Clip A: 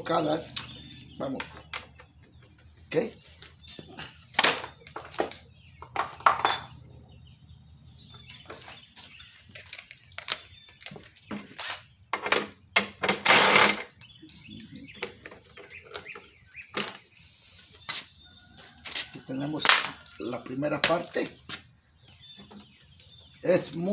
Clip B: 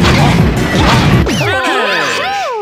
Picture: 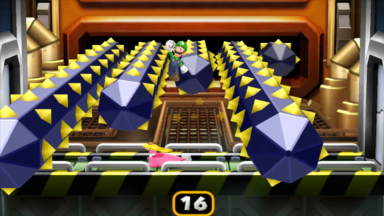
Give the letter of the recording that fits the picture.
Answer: B